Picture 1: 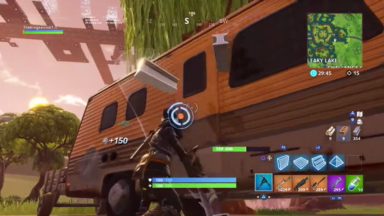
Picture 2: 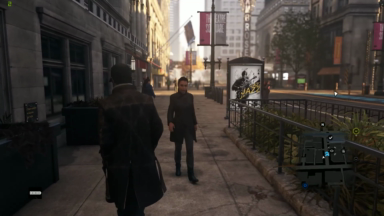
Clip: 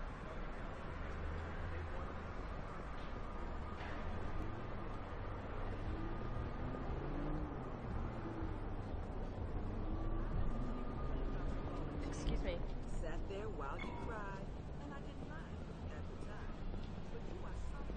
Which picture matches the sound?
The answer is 2